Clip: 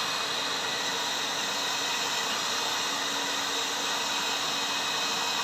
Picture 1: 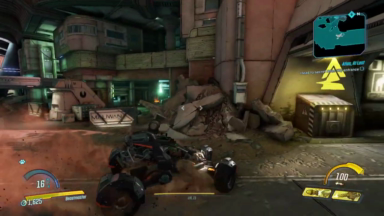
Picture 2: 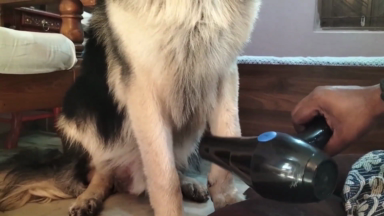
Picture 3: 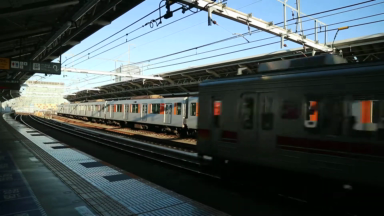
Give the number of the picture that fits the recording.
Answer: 2